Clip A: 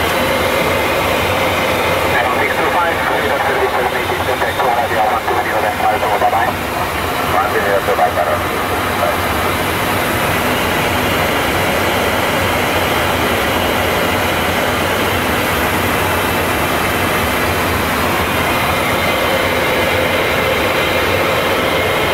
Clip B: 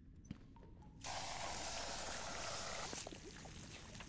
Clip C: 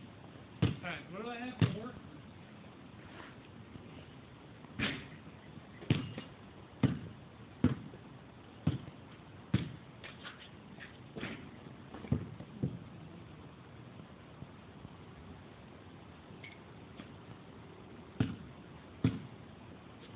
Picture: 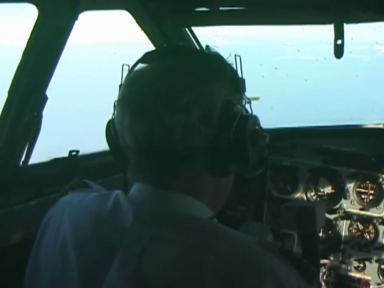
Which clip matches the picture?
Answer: A